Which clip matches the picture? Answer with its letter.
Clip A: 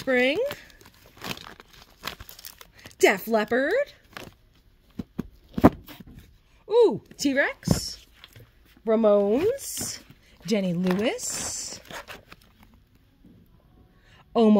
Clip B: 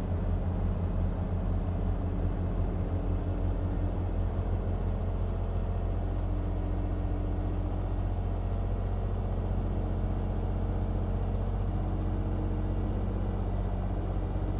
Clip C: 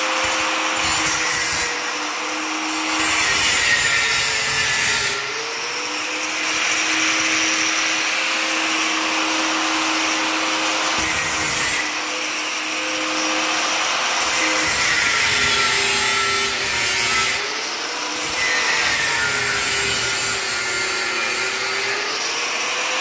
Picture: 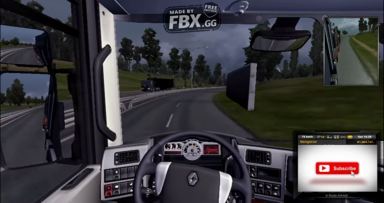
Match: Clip B